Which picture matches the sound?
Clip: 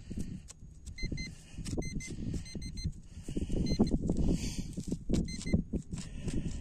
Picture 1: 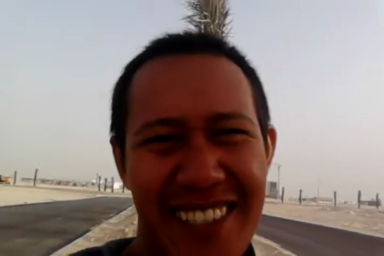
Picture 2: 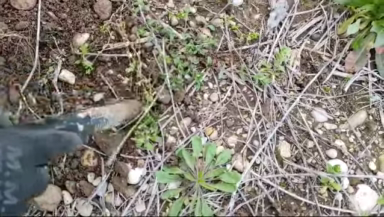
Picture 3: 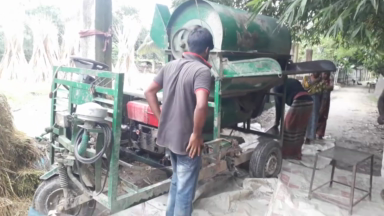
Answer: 2